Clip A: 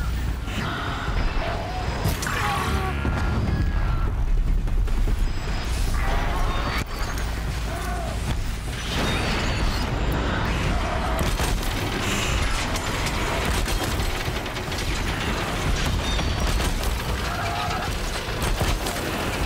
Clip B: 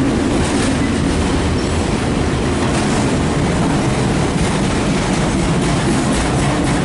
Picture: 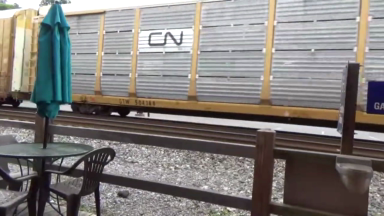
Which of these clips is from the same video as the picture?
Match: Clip B